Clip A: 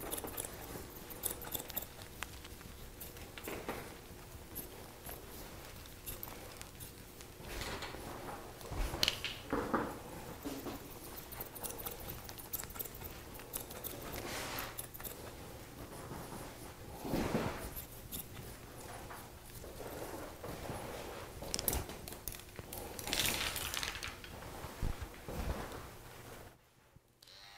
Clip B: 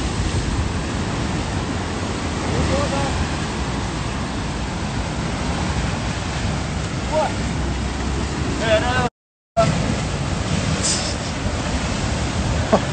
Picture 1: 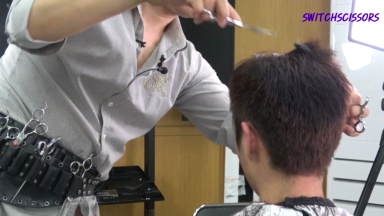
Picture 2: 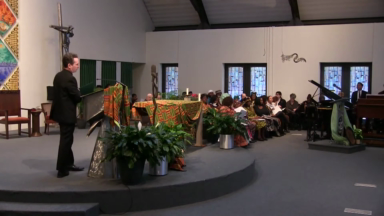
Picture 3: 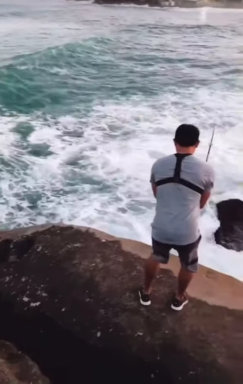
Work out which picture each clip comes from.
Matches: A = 1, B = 3